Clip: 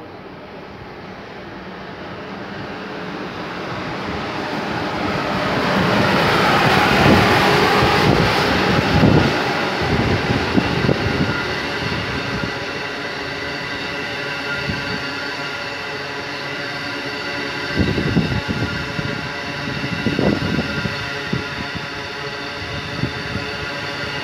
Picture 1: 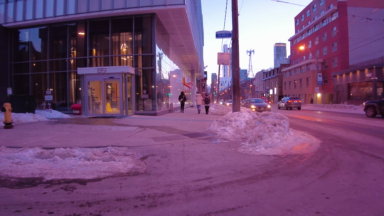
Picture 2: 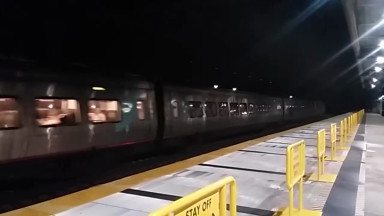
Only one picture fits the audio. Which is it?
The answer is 2